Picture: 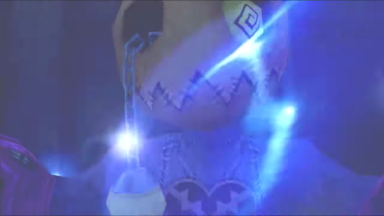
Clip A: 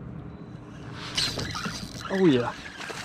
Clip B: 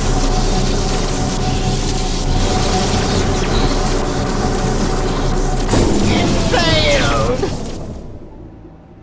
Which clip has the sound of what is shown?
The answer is B